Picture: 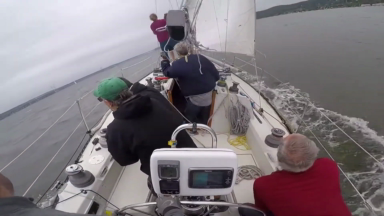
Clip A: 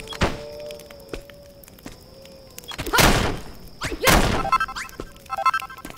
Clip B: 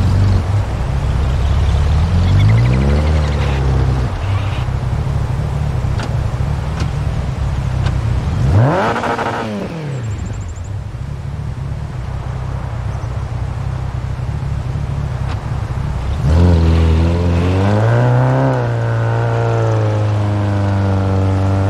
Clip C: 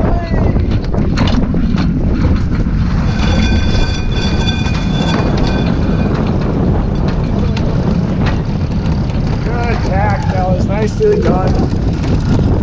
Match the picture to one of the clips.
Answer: C